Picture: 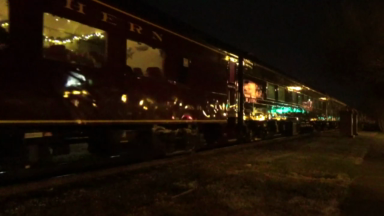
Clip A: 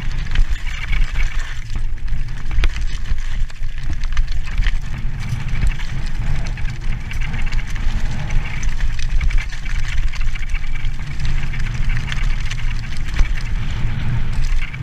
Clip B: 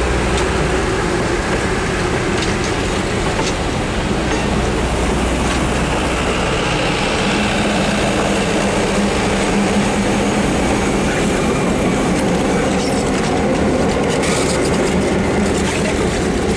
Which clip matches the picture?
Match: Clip B